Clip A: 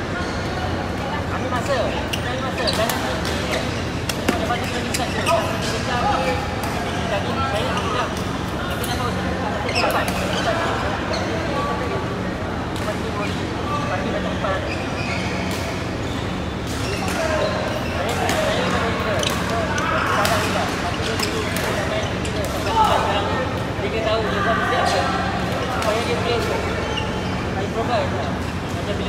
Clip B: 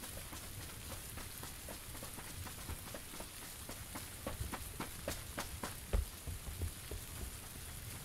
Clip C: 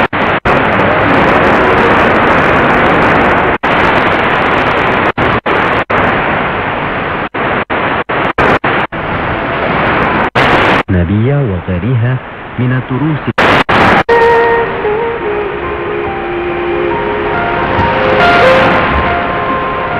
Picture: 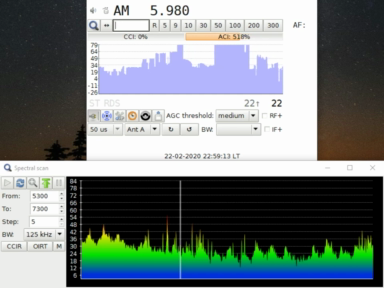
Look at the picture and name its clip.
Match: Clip C